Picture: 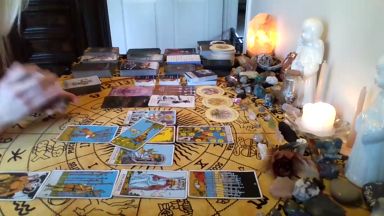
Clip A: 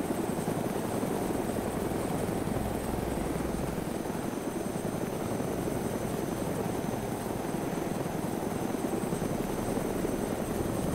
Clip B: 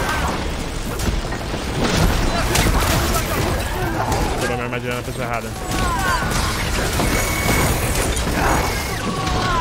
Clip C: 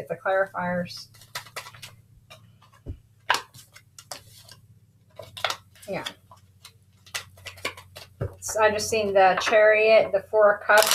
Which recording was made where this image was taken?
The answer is C